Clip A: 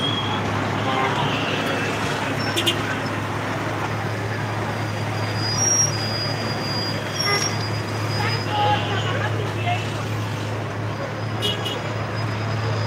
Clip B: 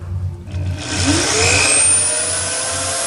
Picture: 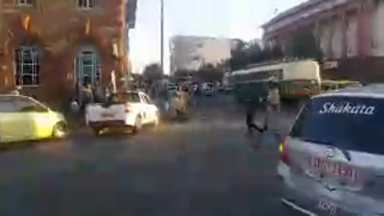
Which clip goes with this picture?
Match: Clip A